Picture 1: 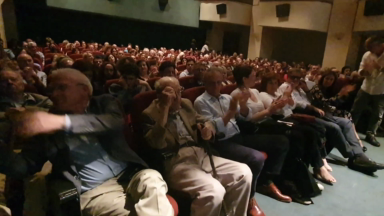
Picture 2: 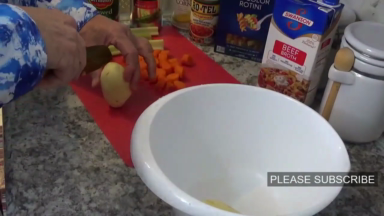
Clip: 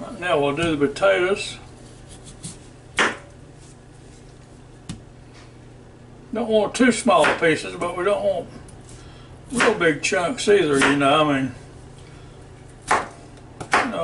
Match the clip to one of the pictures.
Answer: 2